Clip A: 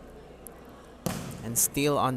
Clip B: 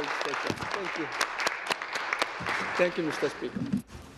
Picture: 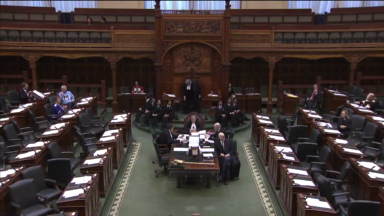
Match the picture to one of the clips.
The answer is B